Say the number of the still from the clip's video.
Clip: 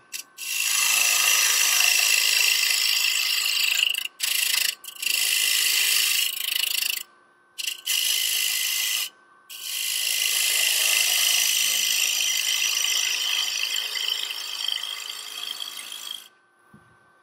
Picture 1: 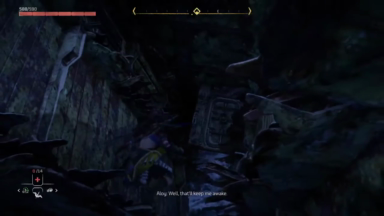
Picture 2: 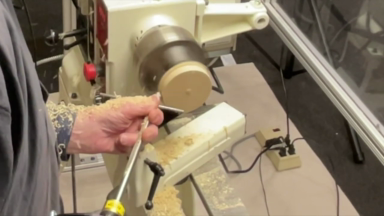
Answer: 2